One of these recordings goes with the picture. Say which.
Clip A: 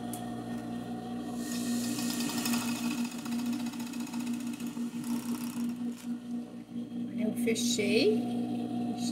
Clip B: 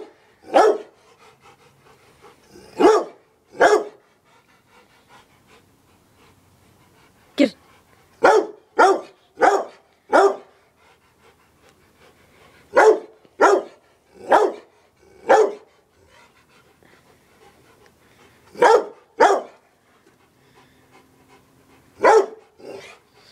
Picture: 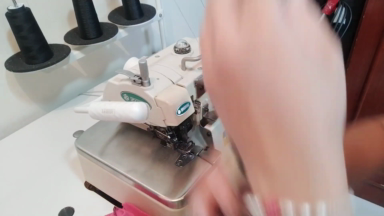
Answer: A